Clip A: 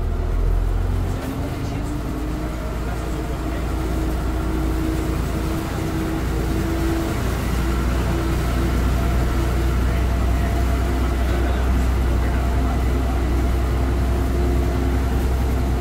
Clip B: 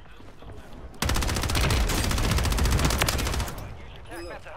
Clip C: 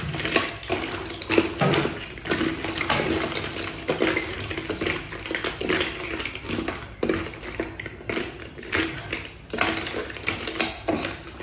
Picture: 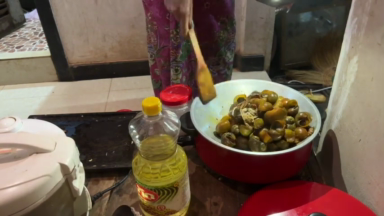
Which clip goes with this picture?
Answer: C